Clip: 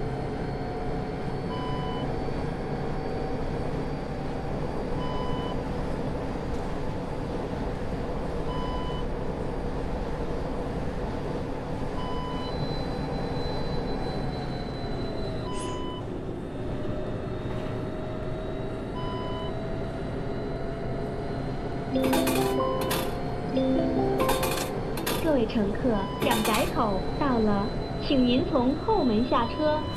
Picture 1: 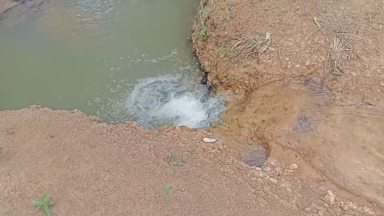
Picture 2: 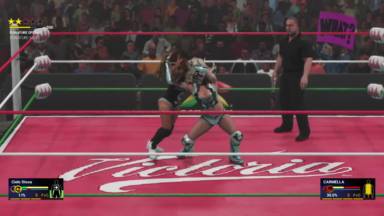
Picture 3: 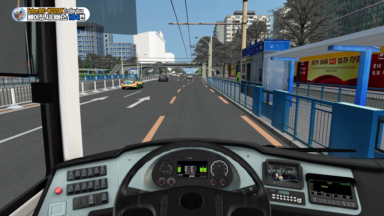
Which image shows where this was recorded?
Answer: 3